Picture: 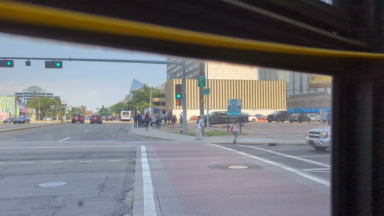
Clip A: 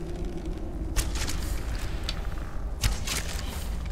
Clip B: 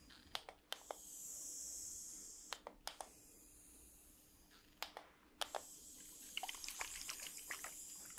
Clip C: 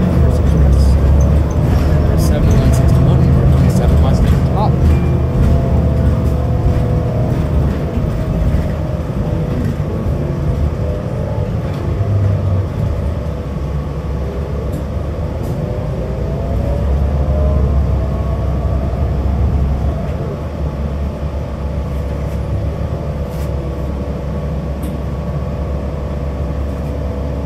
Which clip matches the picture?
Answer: C